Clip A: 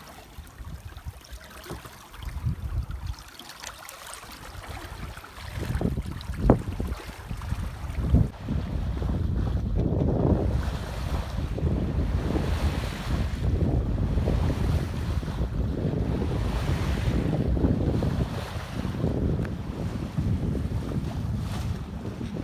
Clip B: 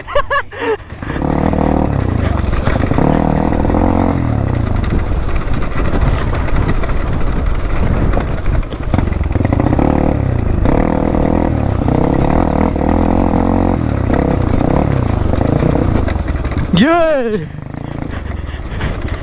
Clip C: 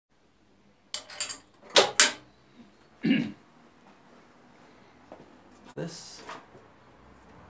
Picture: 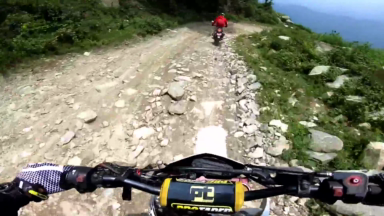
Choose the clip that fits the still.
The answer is B